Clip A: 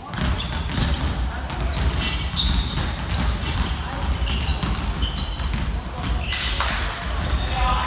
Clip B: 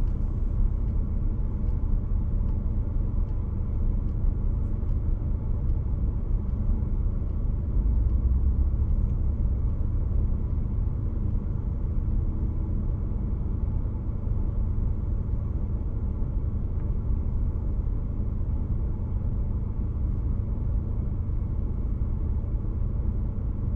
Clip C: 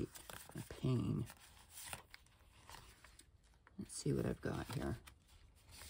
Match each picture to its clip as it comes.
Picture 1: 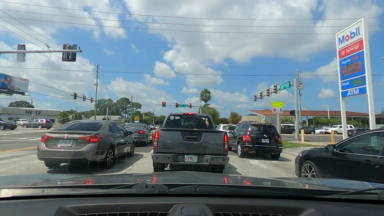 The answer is B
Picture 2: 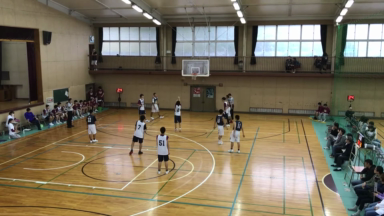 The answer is A